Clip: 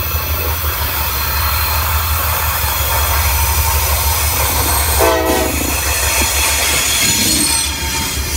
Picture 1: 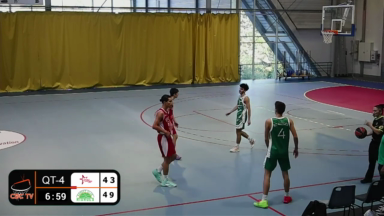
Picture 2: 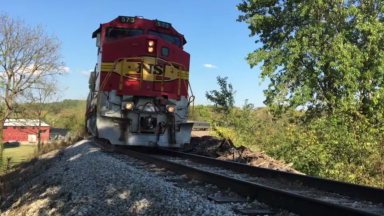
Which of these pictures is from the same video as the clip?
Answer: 2